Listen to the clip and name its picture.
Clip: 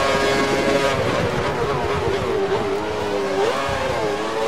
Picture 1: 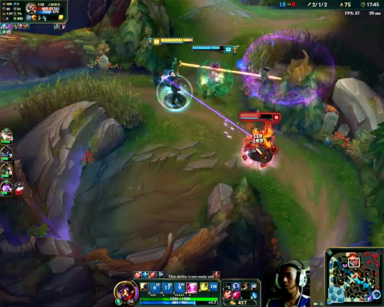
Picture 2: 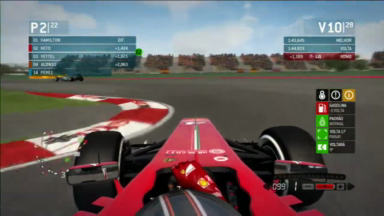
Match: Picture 2